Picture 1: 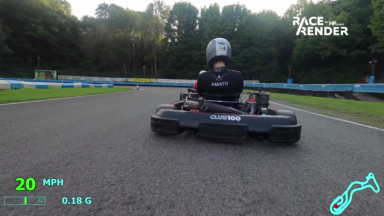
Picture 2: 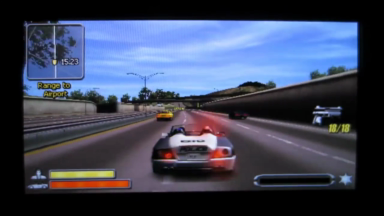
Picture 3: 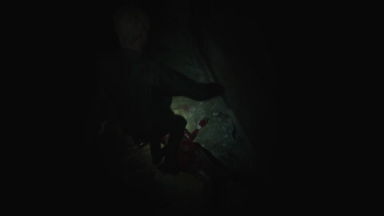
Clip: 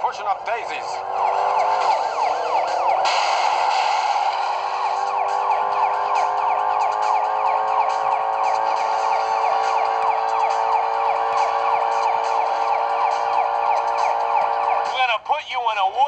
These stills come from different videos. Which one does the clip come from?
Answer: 2